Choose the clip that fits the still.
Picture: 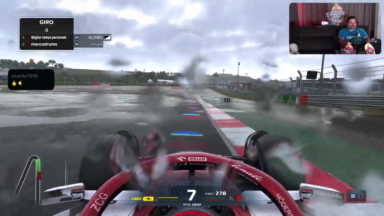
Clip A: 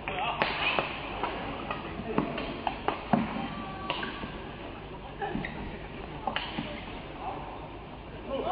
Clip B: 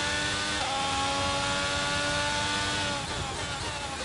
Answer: B